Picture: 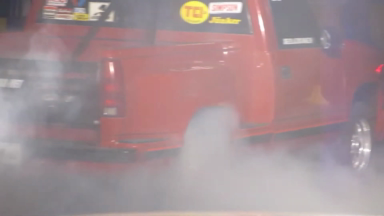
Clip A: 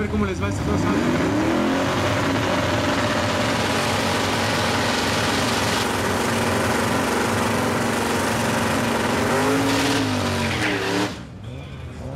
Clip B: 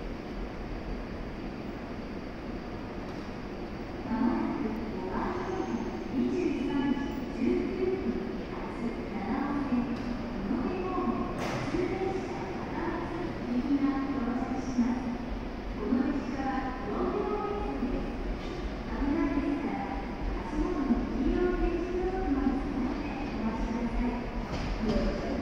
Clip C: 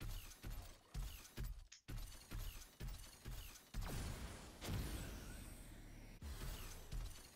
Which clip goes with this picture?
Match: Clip A